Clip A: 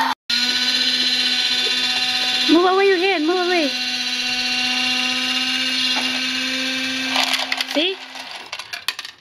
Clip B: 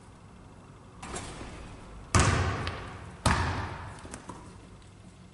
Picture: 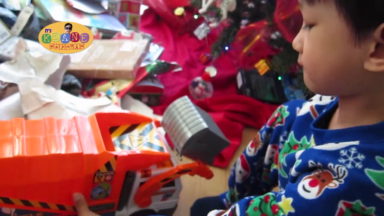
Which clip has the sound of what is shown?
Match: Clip A